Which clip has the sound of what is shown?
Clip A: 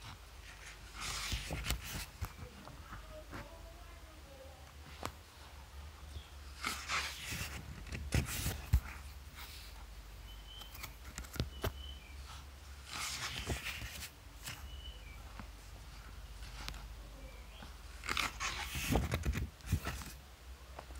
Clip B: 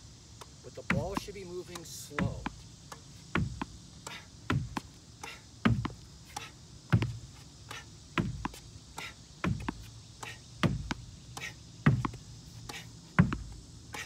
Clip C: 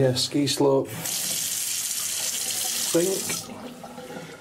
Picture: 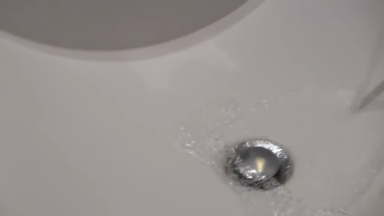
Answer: C